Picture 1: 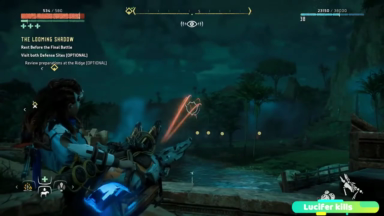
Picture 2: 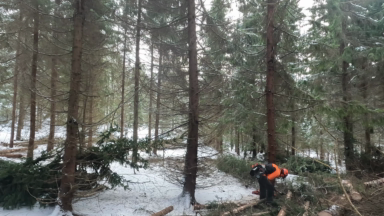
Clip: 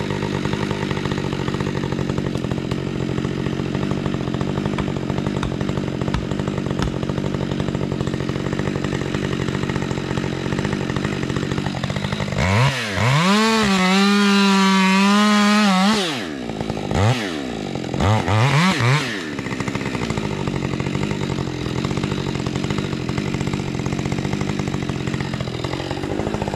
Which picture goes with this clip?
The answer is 2